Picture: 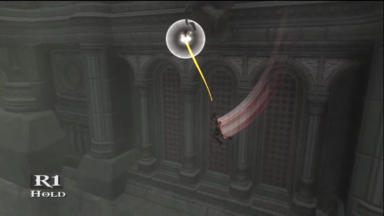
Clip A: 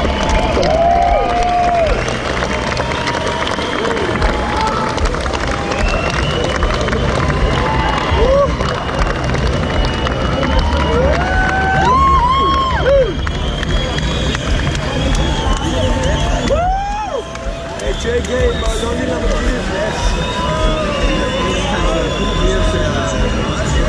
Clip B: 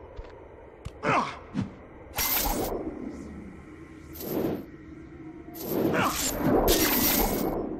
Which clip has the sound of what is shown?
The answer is B